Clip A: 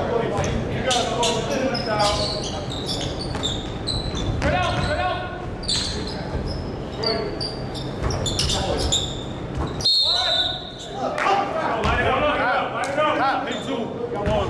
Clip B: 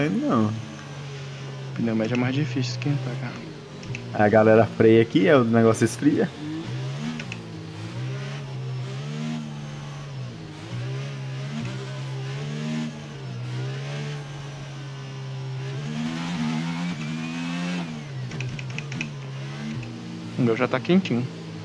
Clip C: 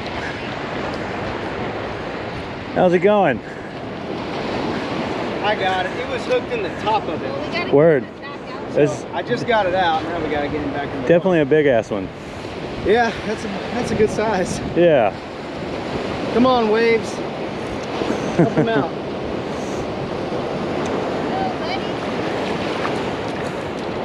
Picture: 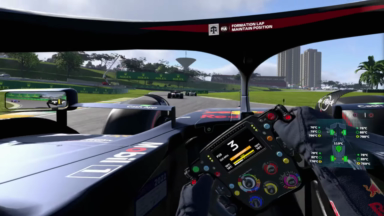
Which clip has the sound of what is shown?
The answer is B